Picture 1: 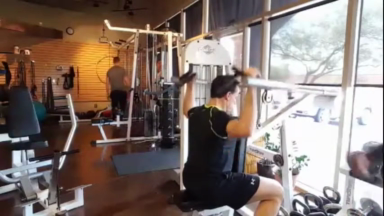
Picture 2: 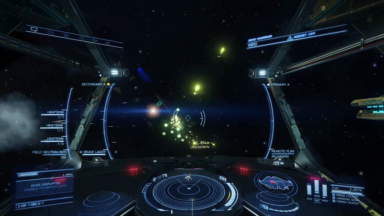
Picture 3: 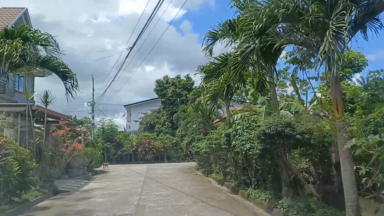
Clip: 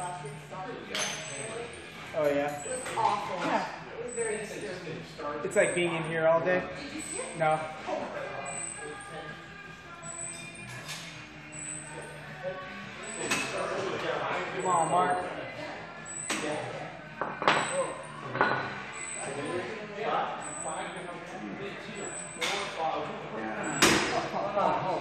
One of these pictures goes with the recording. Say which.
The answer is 1